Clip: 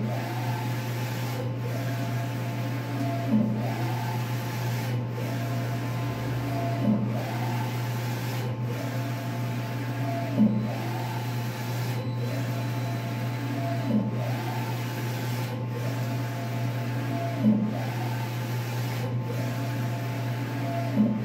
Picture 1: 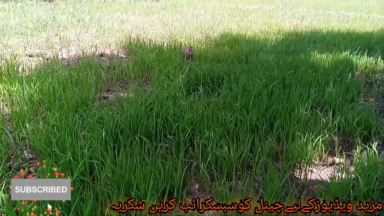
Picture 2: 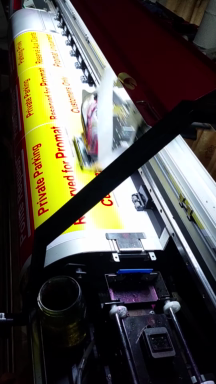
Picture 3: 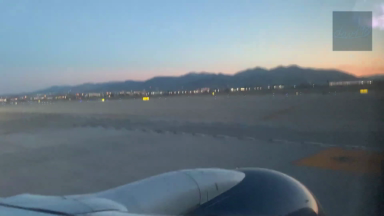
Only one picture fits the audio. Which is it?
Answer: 2